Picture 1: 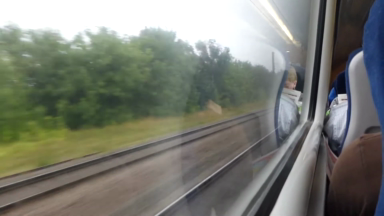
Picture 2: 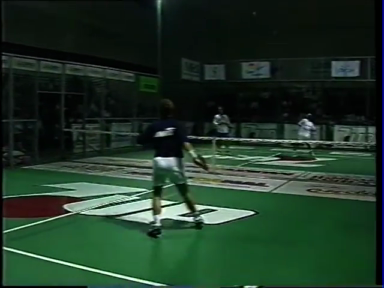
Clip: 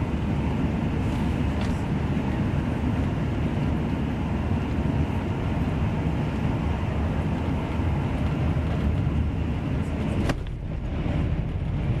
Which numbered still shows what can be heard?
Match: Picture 1